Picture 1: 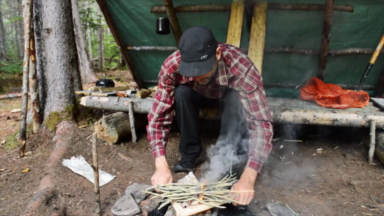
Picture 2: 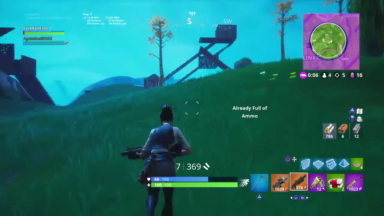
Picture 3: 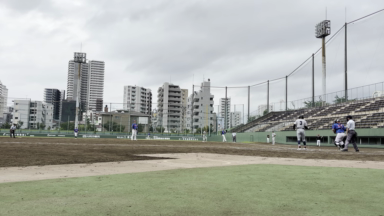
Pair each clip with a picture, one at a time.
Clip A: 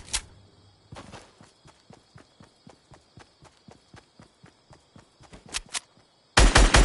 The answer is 2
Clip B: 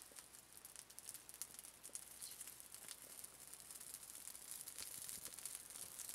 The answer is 1